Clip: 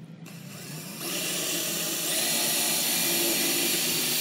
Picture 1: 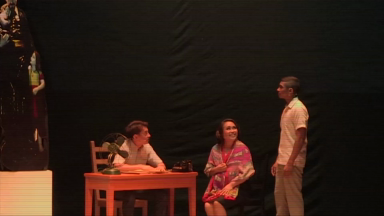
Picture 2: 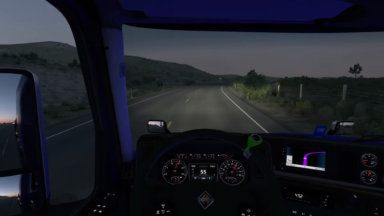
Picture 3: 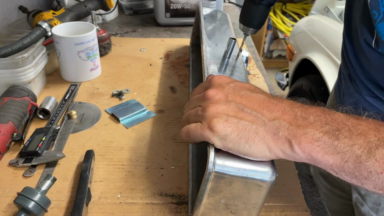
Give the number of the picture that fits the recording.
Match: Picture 3